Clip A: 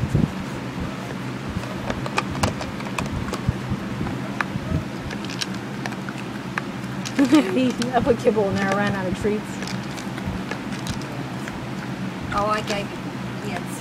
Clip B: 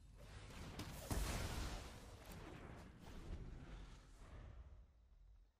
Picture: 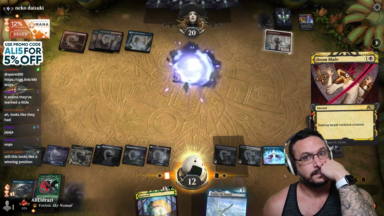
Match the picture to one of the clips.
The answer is B